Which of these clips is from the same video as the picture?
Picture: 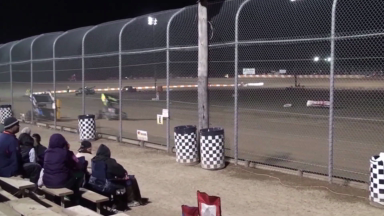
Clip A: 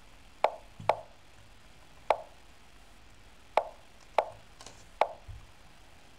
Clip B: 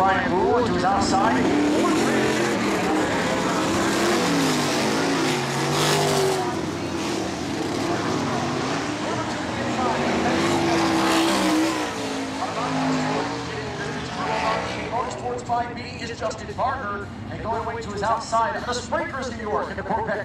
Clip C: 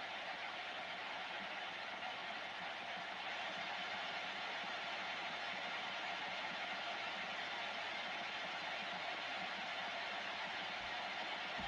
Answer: B